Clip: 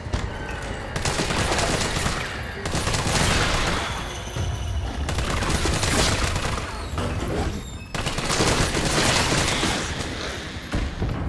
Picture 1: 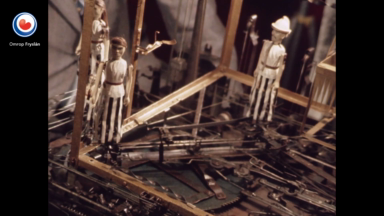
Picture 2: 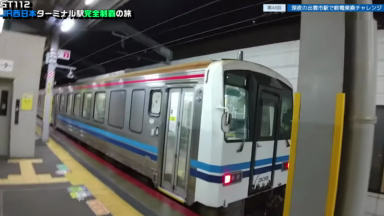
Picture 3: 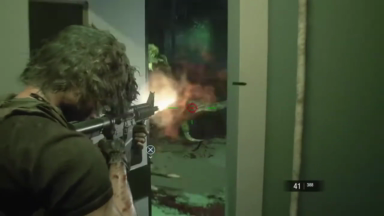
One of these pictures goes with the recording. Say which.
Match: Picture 3